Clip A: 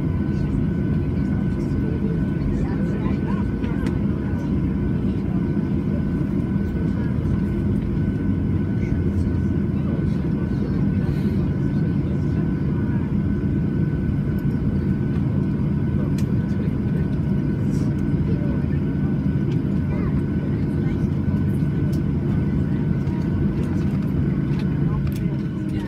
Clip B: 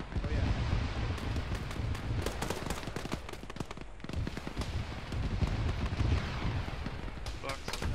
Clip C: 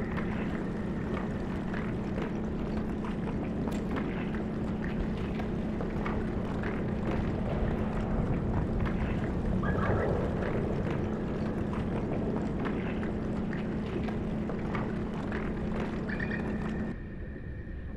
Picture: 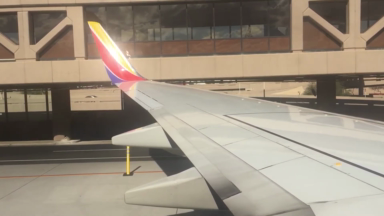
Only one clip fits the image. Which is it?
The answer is A